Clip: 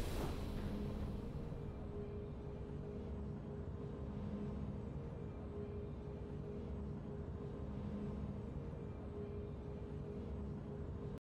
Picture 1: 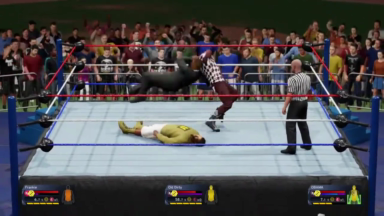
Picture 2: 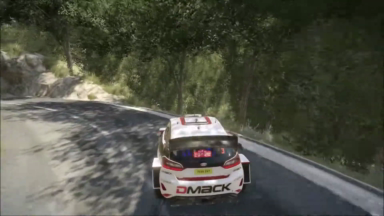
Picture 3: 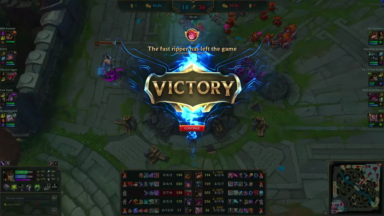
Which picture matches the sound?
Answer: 3